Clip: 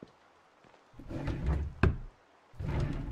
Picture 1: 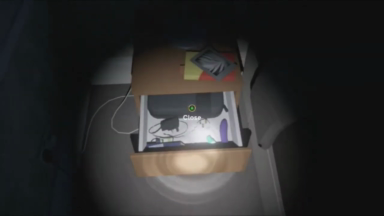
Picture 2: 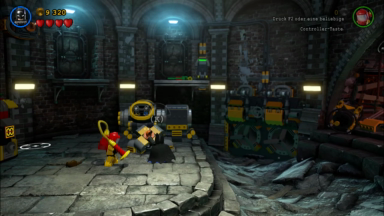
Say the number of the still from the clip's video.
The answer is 1